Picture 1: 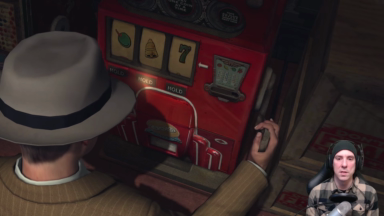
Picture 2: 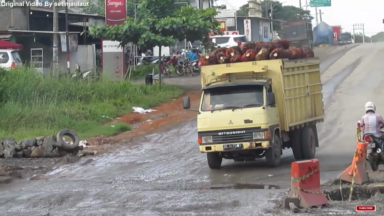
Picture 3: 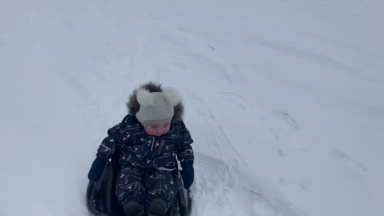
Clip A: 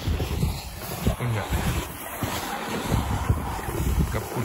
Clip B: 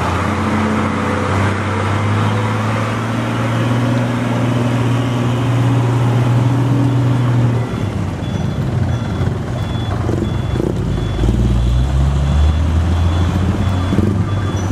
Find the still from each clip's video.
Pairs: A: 3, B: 2